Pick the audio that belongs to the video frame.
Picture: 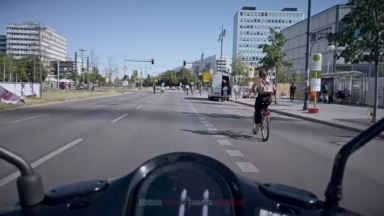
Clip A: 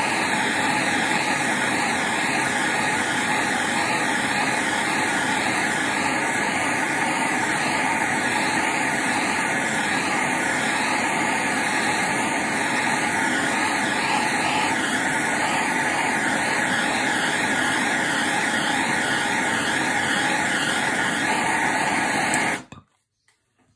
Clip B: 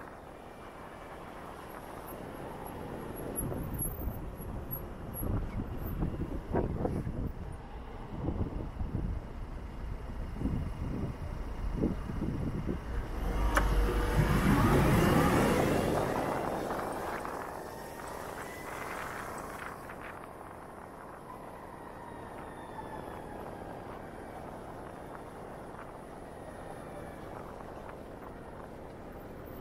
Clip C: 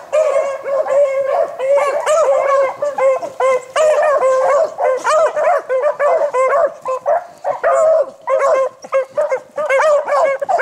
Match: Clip B